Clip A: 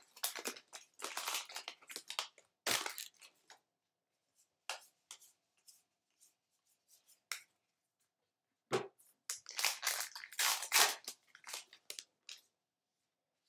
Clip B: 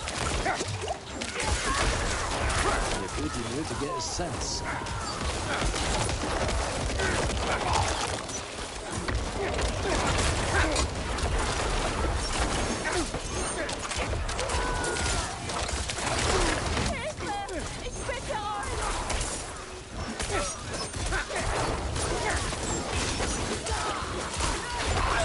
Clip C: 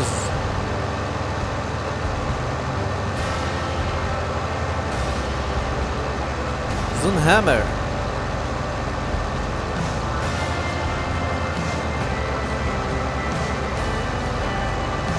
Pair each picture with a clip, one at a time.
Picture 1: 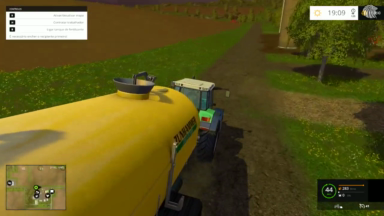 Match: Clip C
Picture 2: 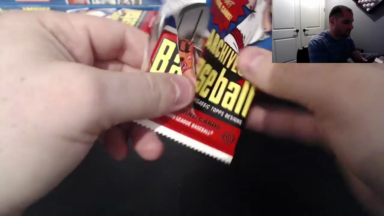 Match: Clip A